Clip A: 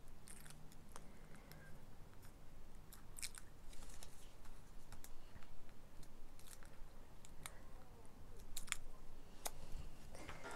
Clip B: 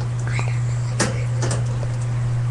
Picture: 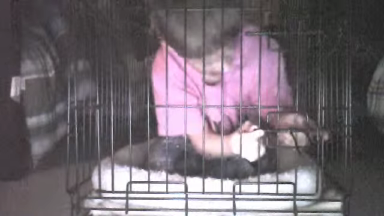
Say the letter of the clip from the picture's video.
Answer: B